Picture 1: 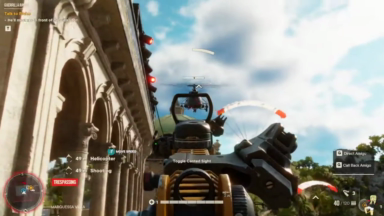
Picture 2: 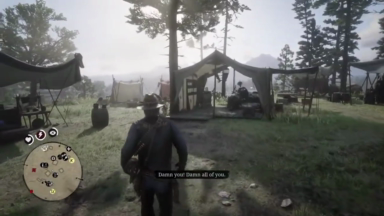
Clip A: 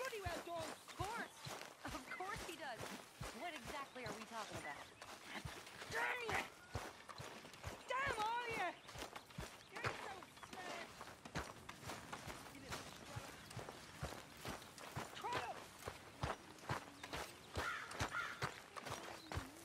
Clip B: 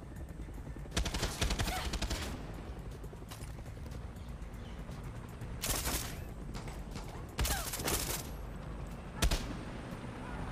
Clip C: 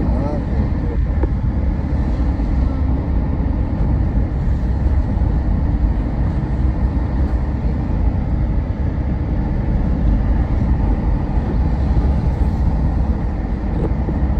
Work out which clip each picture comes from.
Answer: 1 B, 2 A